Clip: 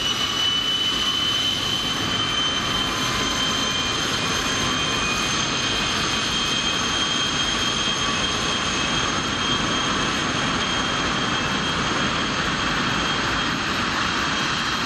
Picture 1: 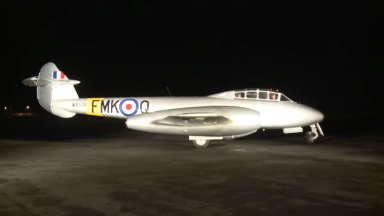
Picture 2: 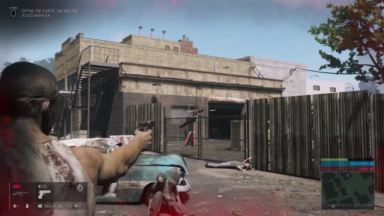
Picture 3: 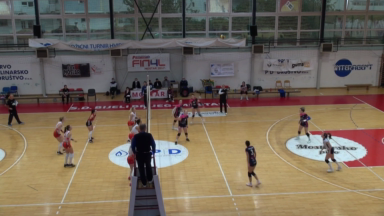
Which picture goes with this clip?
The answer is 1